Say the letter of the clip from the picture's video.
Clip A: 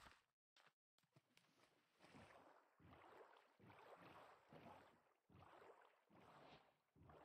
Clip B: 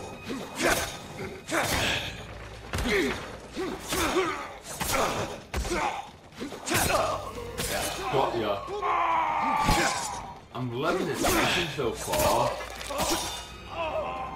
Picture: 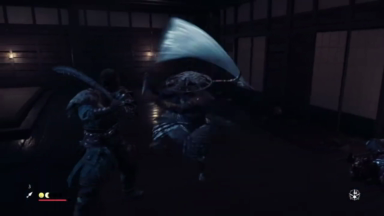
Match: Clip B